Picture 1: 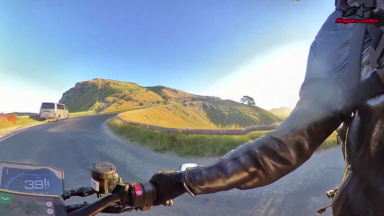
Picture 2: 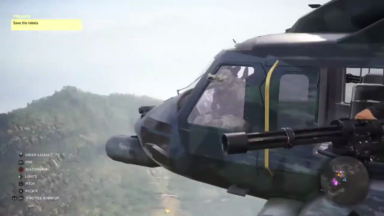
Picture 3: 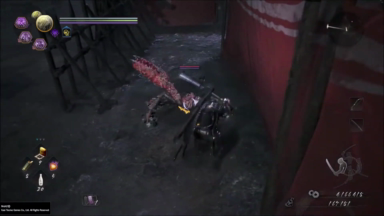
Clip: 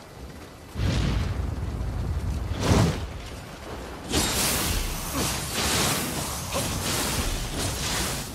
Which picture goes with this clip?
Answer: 3